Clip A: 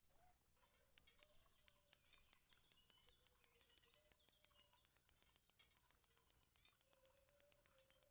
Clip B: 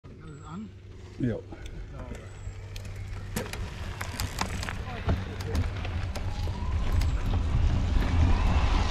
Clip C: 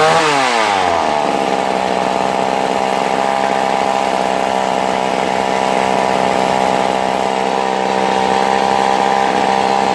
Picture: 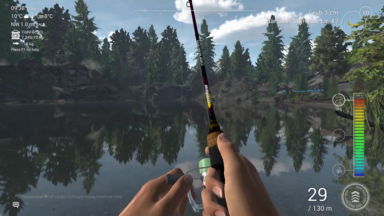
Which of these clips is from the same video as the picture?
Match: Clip A